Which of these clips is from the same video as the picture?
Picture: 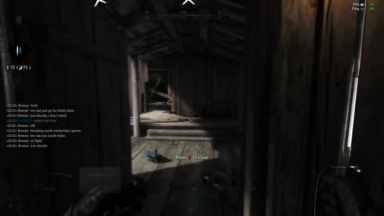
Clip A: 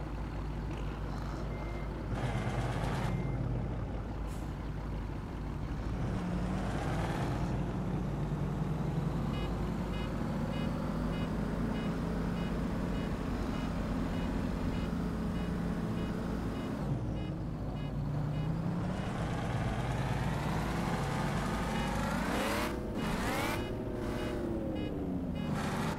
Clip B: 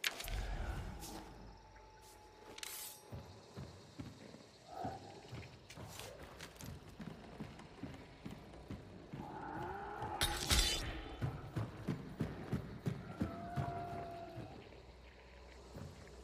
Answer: B